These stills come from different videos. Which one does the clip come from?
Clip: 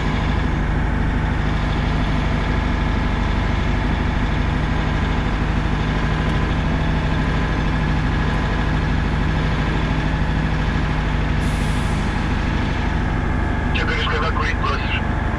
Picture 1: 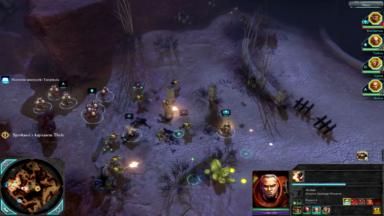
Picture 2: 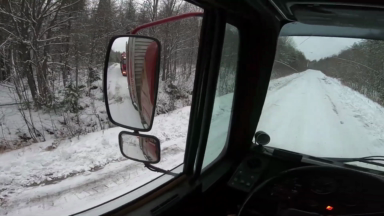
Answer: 2